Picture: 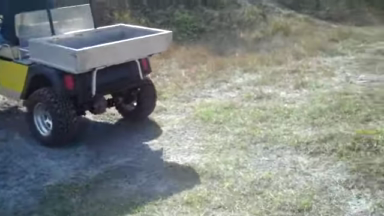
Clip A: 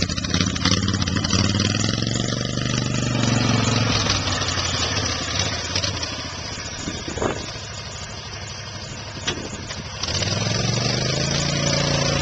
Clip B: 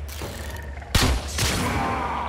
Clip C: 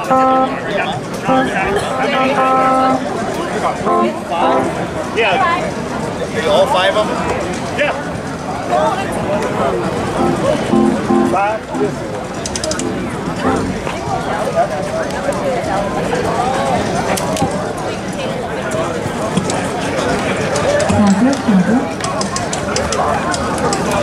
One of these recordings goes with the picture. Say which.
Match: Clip A